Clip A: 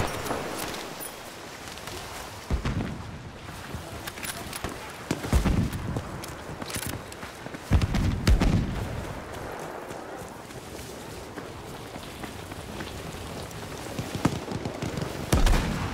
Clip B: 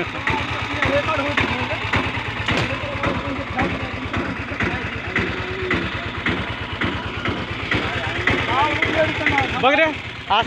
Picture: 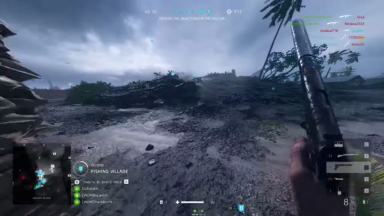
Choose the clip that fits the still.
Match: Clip A